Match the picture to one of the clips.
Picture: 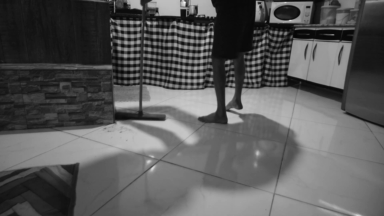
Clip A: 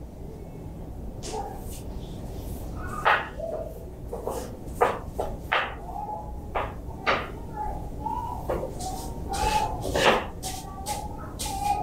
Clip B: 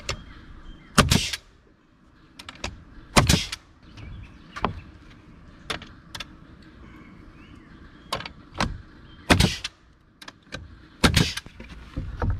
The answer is A